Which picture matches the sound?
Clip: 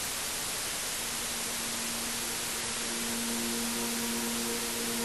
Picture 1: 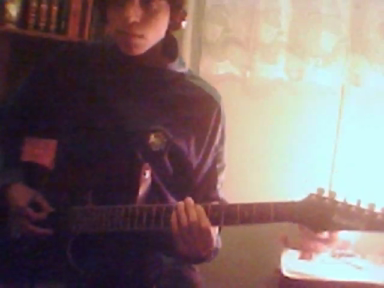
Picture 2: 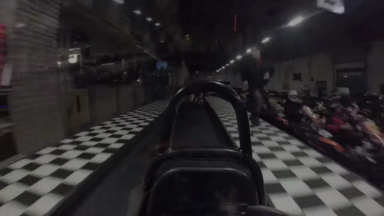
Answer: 1